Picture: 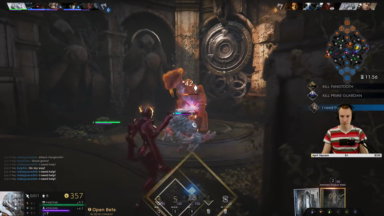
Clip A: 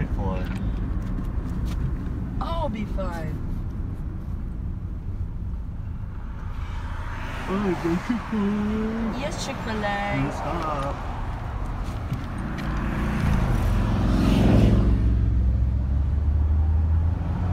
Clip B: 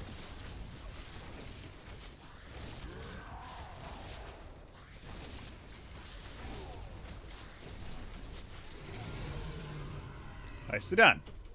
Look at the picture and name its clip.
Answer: B